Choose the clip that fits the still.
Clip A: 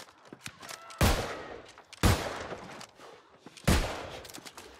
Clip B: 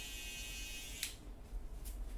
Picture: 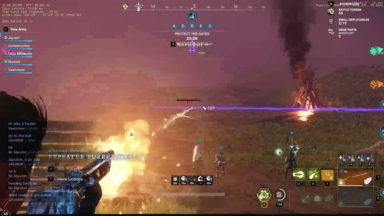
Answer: A